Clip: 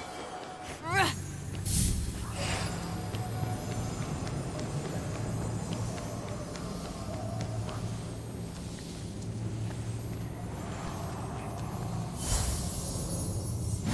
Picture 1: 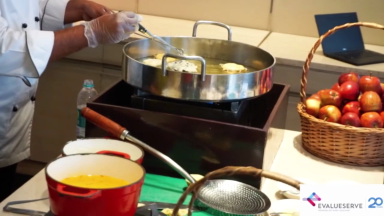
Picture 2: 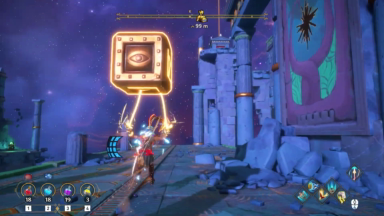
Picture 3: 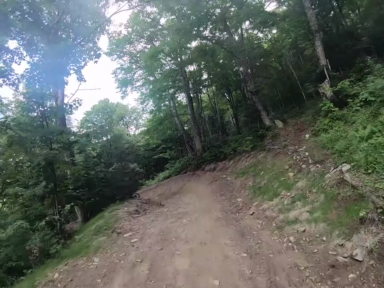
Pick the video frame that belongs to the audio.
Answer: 2